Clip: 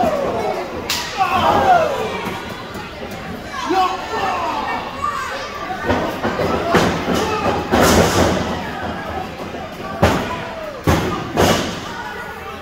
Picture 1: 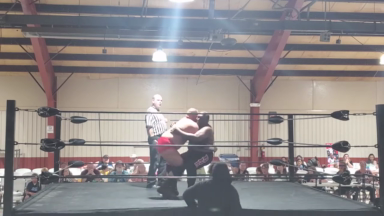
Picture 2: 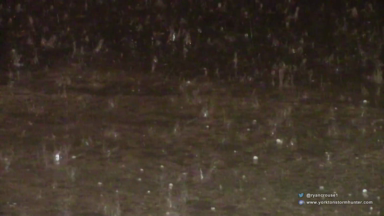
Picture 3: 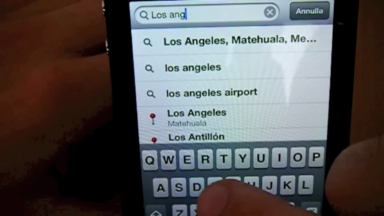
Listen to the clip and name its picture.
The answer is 1